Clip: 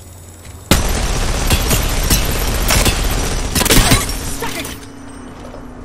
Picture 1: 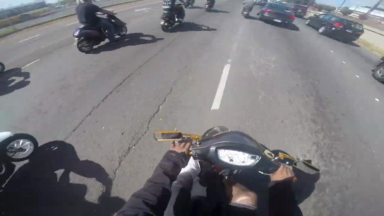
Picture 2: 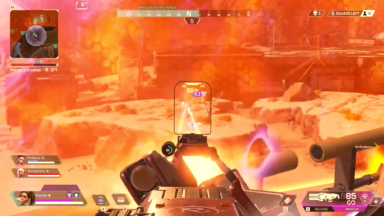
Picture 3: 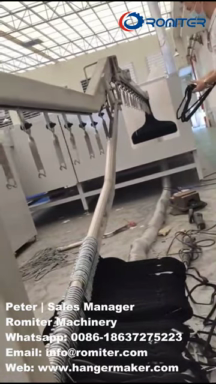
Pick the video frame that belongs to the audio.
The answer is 2